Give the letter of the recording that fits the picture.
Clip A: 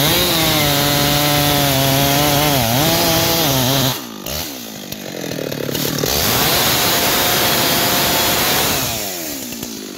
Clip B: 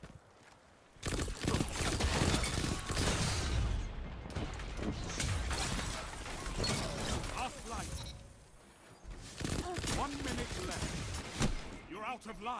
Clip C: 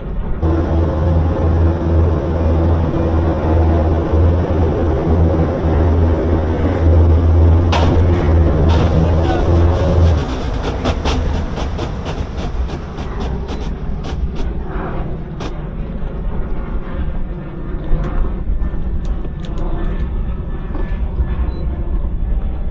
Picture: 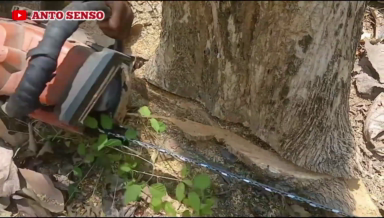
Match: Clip A